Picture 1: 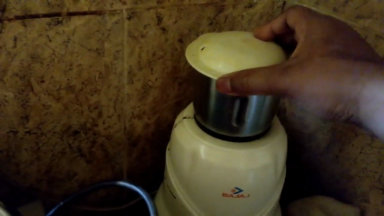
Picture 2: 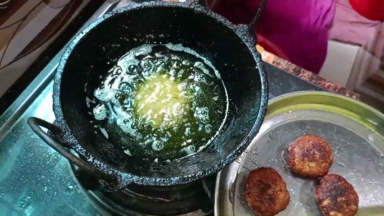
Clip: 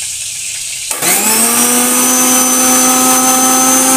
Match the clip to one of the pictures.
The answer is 1